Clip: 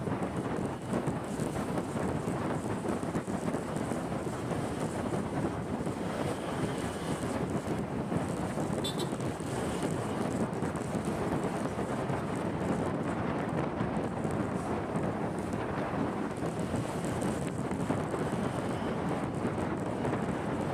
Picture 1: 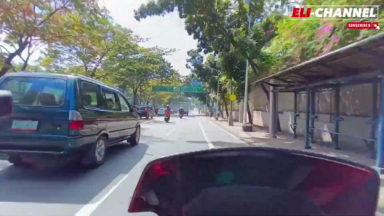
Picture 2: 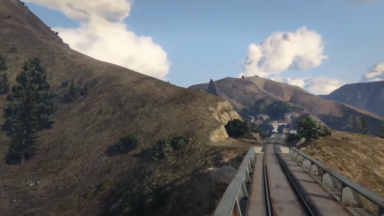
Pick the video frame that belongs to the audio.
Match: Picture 1